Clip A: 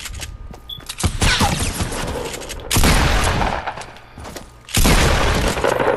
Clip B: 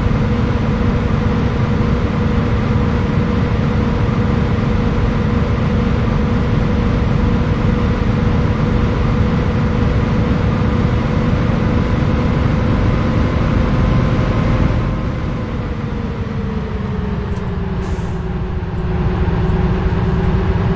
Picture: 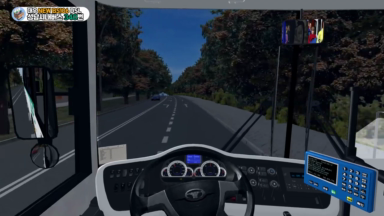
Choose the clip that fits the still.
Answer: B